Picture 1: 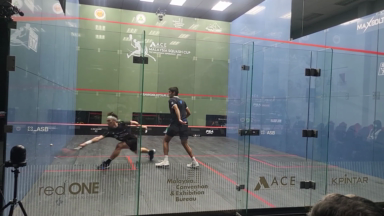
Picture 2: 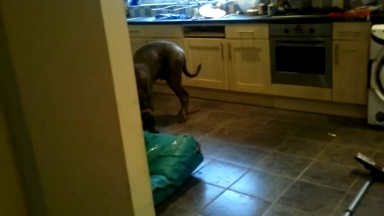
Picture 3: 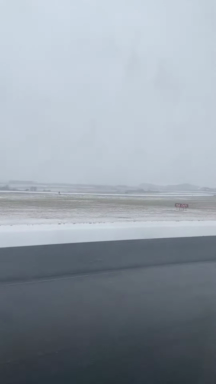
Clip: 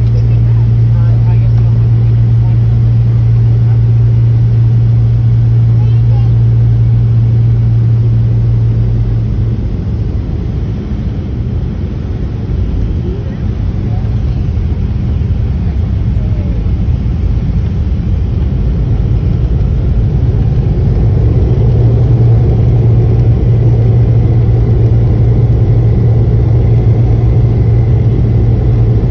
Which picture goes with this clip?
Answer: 3